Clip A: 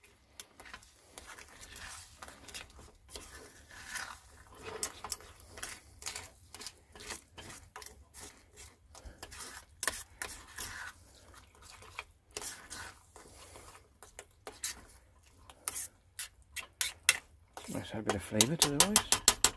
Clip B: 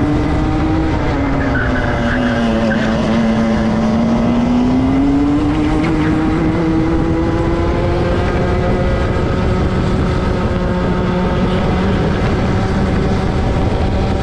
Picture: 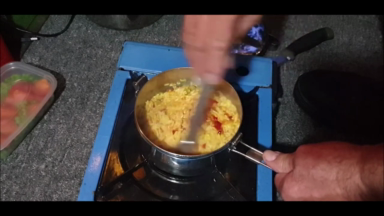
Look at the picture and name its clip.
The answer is A